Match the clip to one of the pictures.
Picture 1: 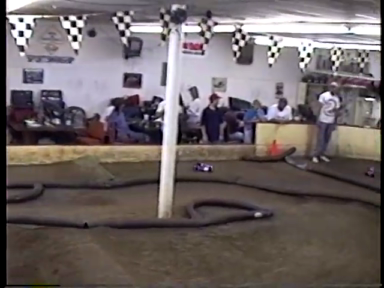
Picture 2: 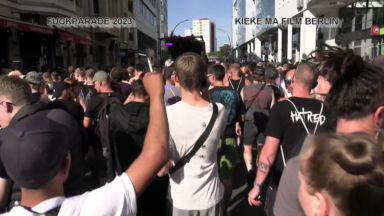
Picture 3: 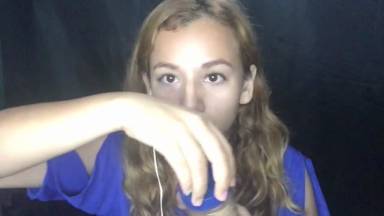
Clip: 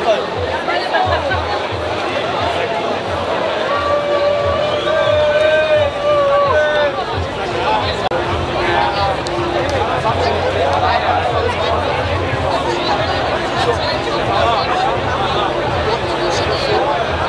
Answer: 2